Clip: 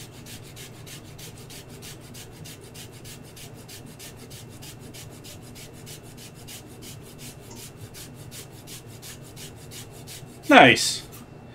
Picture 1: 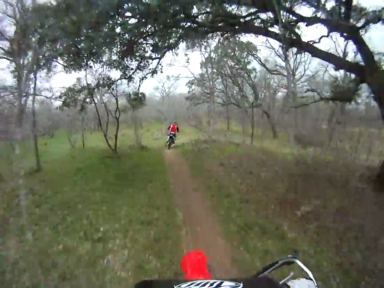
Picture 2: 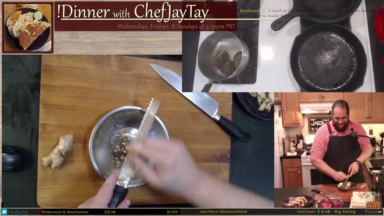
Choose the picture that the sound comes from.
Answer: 2